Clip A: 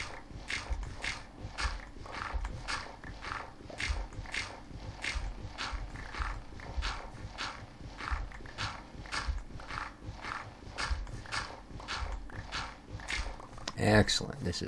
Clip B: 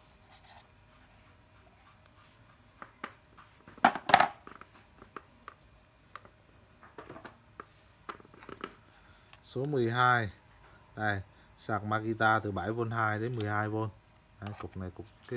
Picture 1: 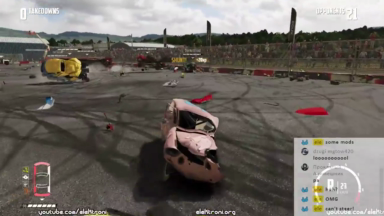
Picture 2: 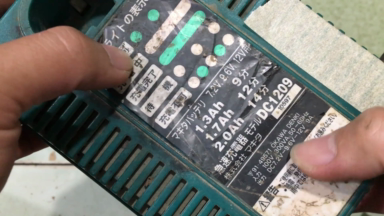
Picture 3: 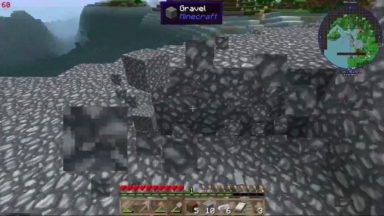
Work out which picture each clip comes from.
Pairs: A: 3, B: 2